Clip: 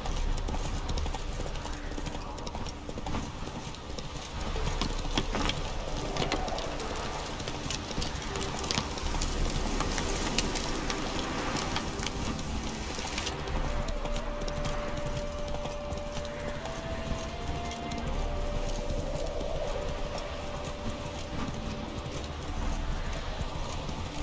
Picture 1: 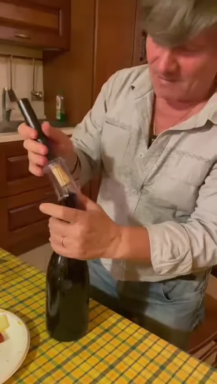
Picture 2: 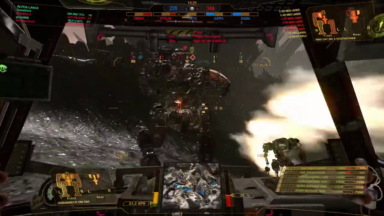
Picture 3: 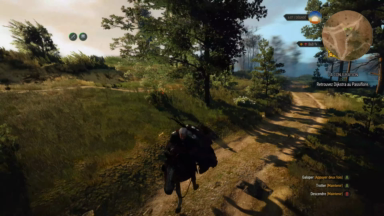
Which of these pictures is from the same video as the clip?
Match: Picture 3